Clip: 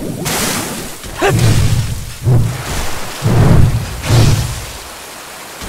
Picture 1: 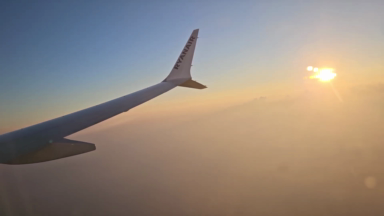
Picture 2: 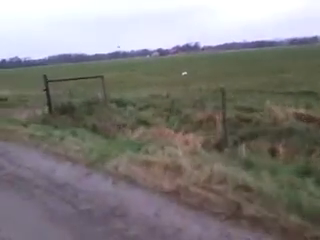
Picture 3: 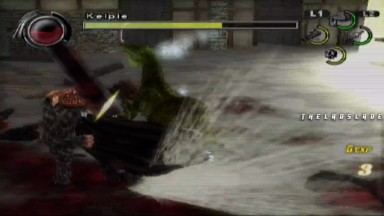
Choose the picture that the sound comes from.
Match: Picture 3